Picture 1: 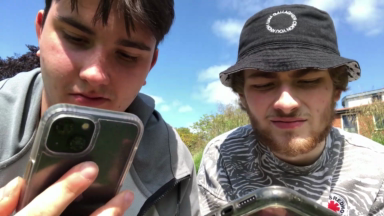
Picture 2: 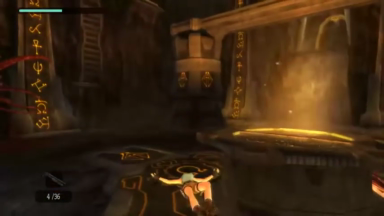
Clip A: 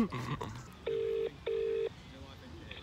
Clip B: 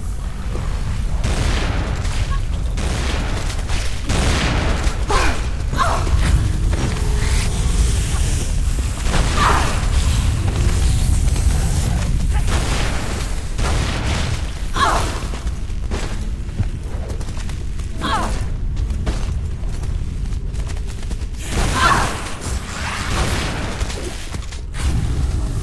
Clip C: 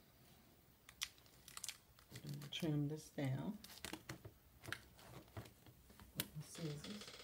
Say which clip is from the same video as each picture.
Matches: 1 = A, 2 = B